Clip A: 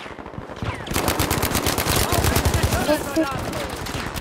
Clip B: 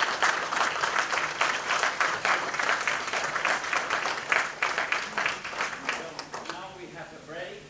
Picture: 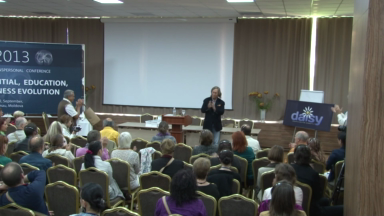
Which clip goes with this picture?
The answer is B